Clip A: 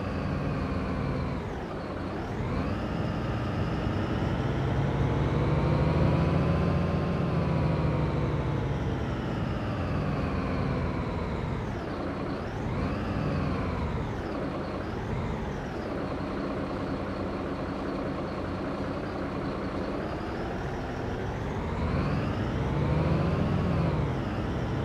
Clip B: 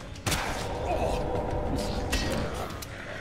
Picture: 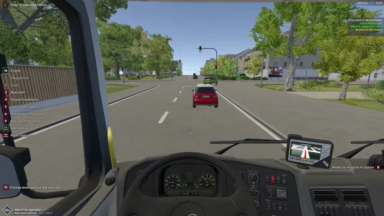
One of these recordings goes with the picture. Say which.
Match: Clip A